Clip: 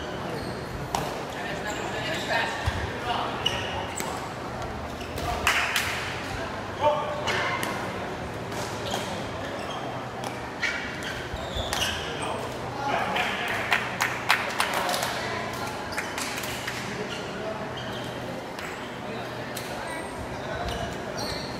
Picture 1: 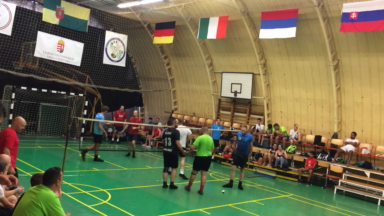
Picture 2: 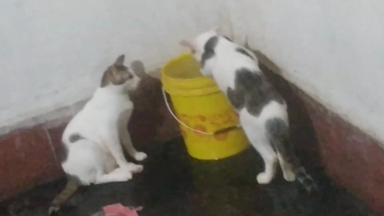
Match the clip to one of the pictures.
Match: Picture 1